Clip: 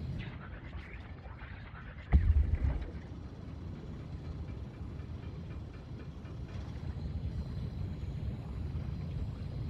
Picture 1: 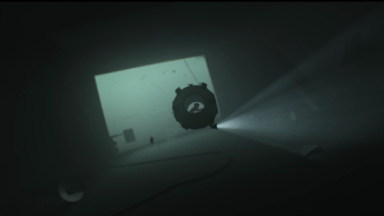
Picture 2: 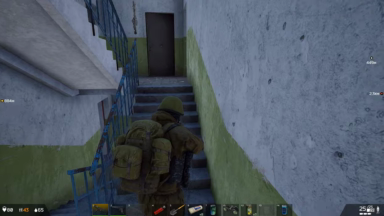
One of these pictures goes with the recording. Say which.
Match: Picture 1